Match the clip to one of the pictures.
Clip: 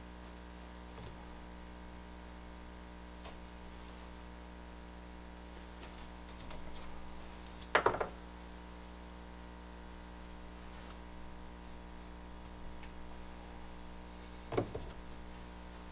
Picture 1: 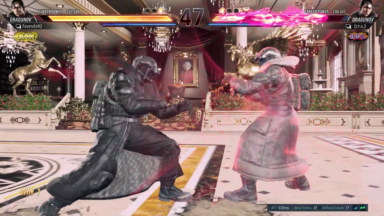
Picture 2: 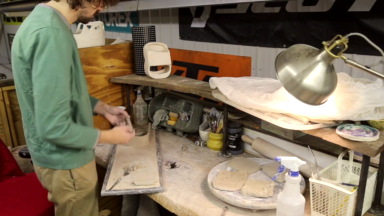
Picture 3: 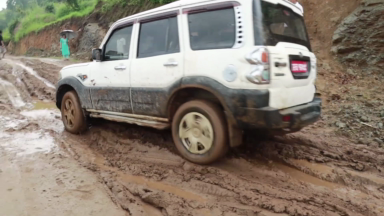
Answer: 2